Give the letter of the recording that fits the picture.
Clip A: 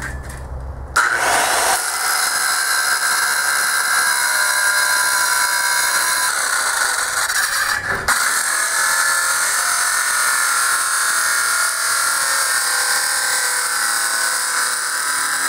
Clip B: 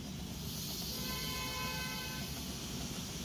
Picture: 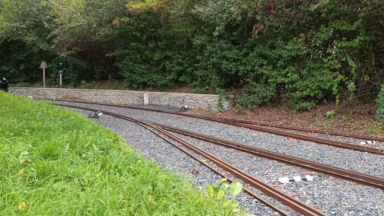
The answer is B